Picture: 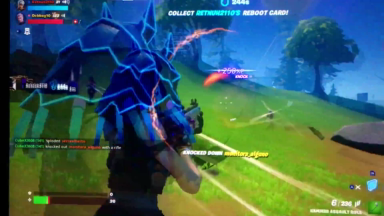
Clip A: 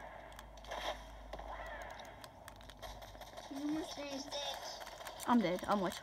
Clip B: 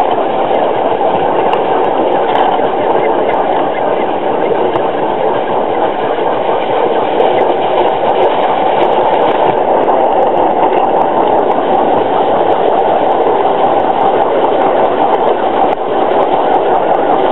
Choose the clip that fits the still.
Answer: A